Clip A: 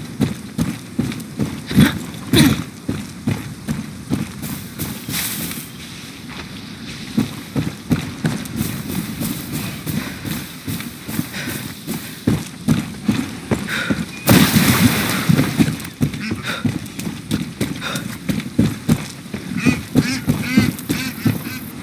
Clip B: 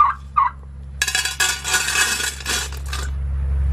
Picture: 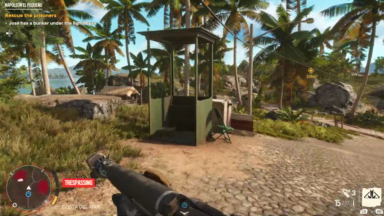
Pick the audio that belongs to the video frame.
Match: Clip A